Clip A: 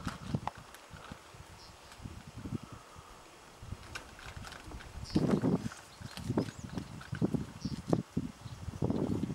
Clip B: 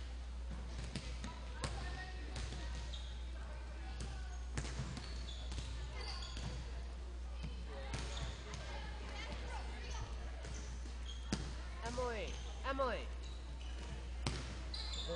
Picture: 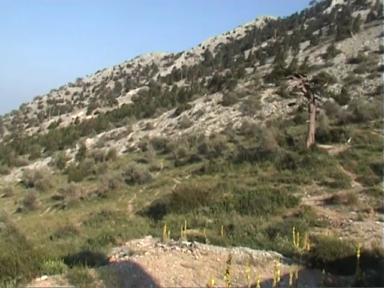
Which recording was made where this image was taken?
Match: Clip A